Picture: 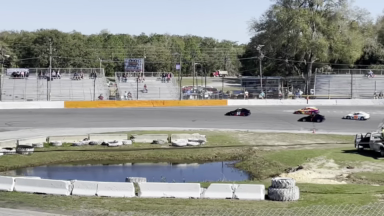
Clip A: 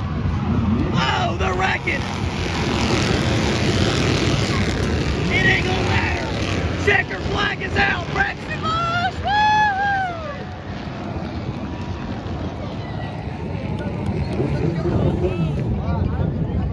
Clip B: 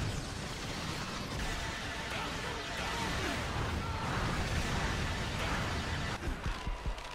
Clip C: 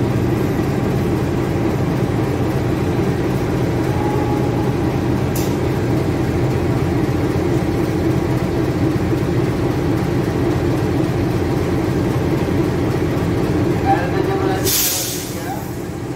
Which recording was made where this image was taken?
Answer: A